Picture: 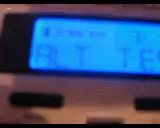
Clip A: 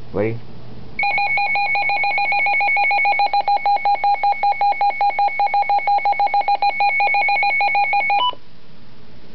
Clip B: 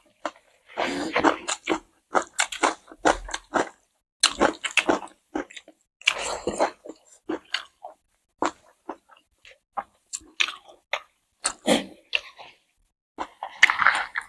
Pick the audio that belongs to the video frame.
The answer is A